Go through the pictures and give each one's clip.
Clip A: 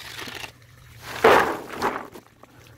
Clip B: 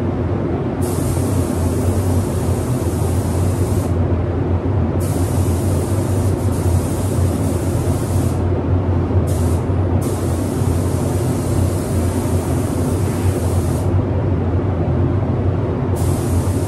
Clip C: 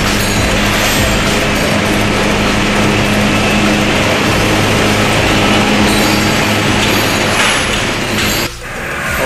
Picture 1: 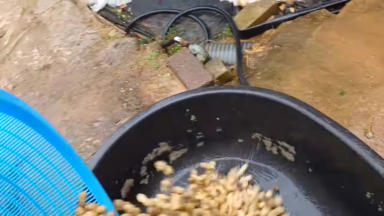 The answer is A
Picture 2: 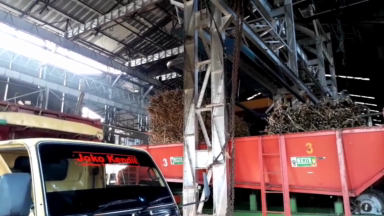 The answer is C